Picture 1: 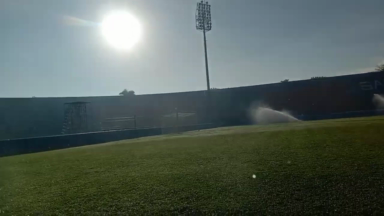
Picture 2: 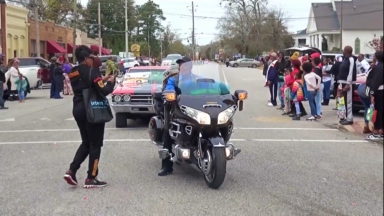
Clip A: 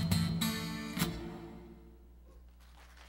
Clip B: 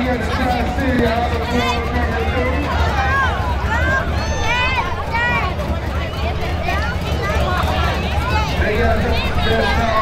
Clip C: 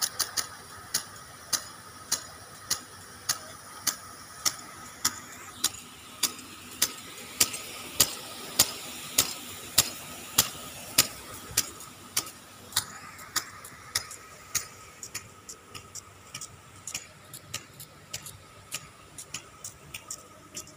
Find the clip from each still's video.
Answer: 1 C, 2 B